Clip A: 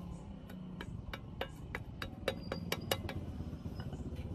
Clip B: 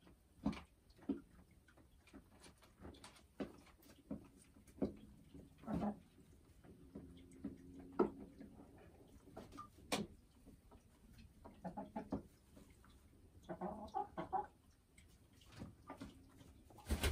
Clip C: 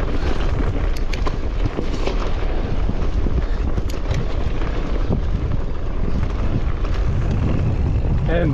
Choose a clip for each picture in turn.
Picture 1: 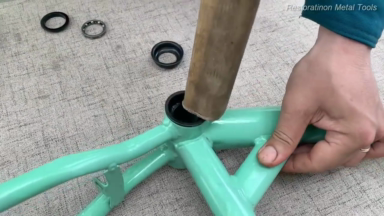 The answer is A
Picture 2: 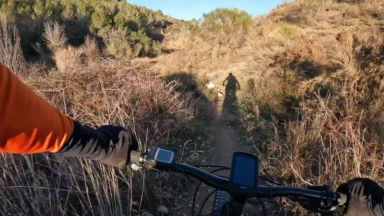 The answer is C